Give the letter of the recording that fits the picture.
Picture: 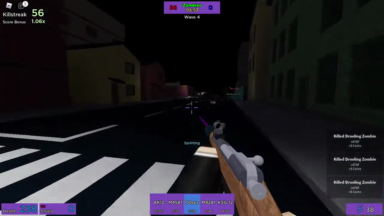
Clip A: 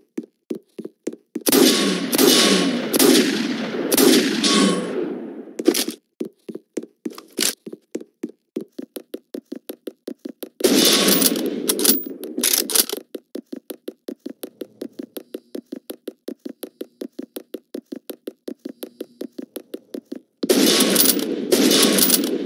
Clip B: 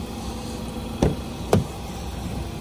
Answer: A